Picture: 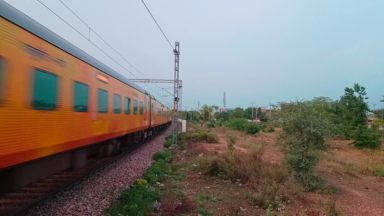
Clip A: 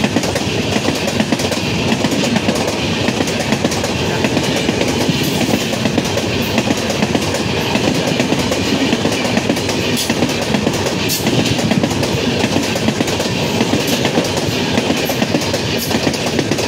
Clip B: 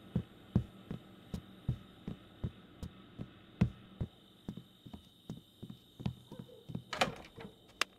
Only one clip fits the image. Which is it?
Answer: A